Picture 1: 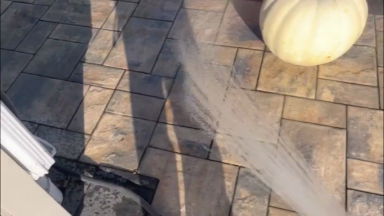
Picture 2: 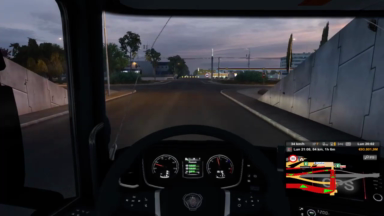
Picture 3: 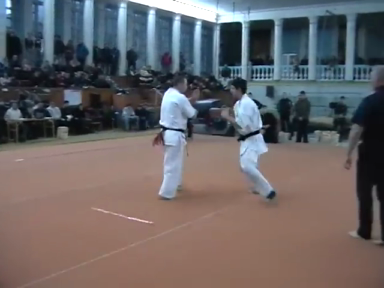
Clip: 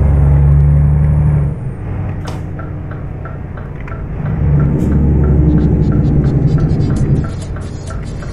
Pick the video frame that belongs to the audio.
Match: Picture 2